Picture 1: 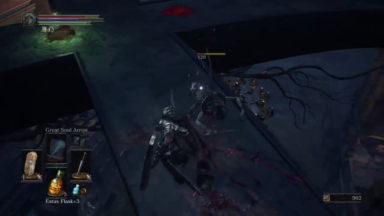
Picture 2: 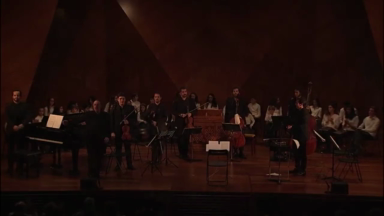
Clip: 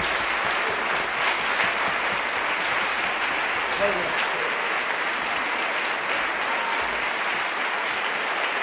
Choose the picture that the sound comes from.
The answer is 2